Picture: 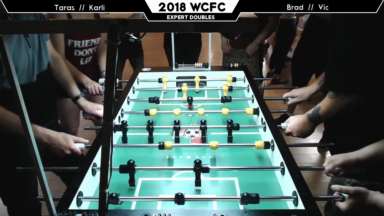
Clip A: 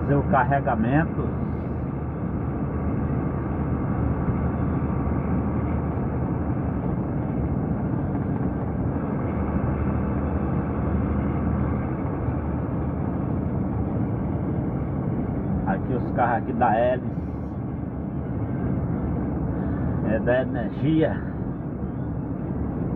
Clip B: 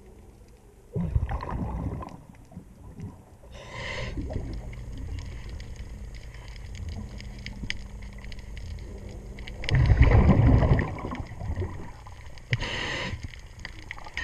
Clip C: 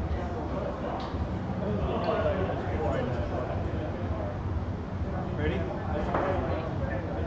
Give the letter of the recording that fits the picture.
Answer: C